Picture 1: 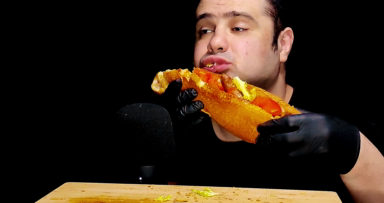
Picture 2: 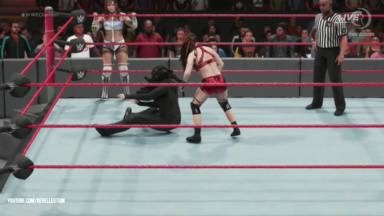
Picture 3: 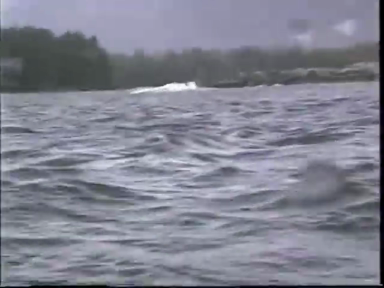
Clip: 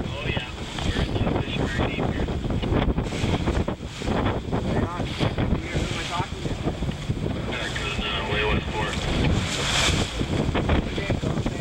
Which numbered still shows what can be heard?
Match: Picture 3